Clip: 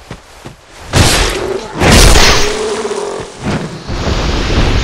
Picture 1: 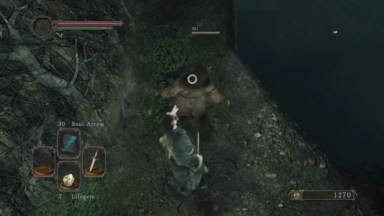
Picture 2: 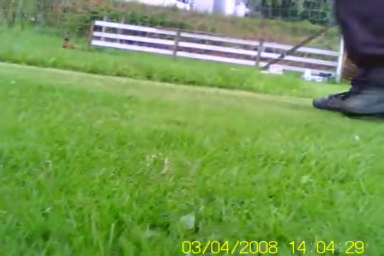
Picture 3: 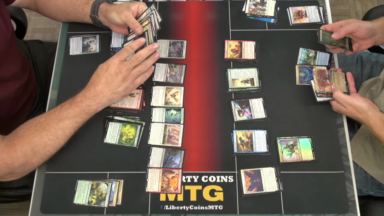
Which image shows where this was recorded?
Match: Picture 1